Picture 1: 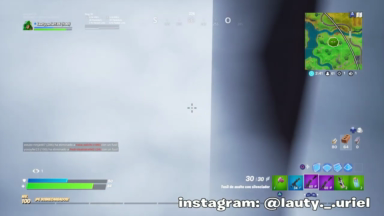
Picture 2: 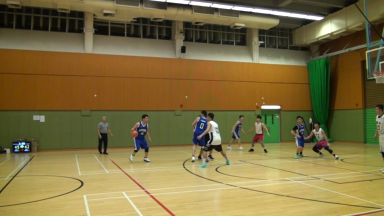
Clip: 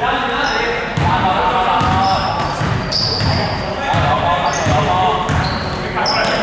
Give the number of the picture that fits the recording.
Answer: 2